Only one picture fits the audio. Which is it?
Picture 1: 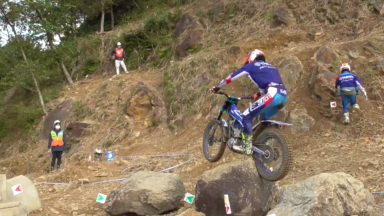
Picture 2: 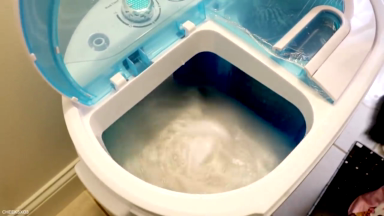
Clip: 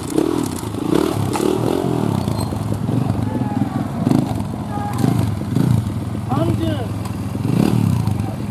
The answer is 1